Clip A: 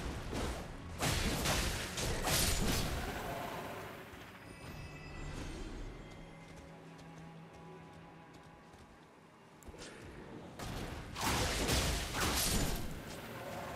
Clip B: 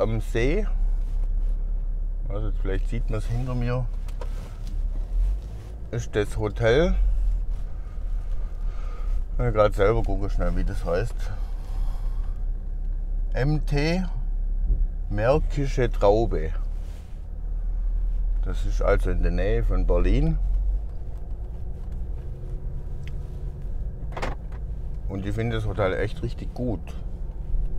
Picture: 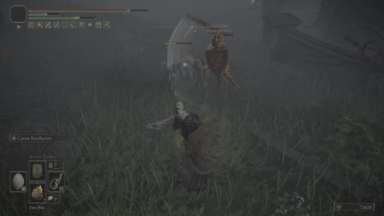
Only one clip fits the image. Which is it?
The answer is A